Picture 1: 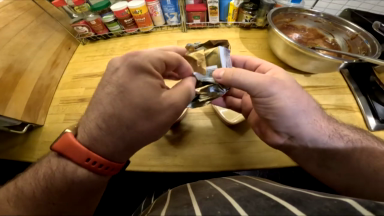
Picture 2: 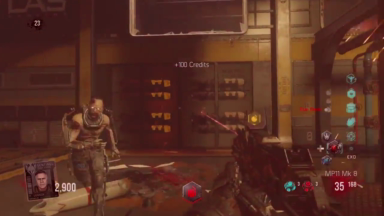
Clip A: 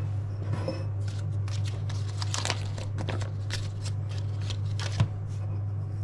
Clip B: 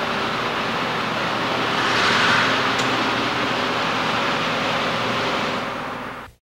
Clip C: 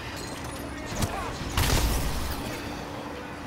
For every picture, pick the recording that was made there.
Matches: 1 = A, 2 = C